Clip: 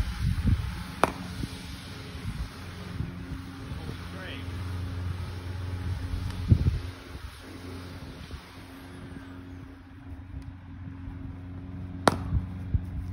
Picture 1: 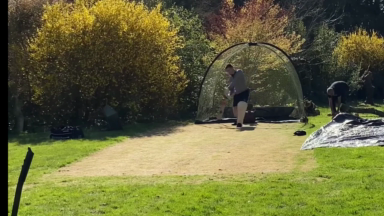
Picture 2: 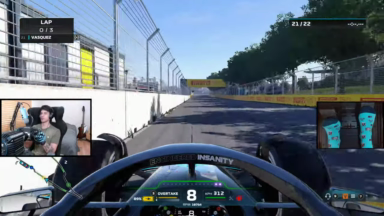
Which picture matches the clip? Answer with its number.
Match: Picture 1